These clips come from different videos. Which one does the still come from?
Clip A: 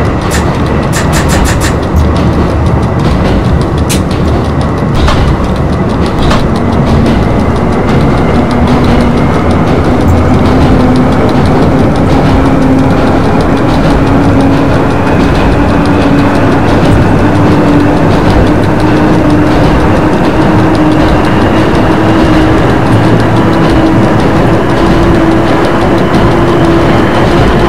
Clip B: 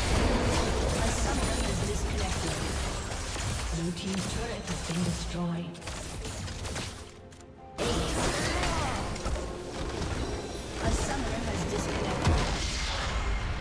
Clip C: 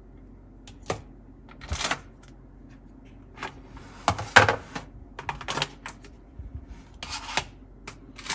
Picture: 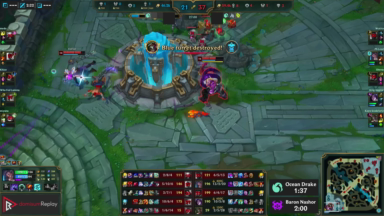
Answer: B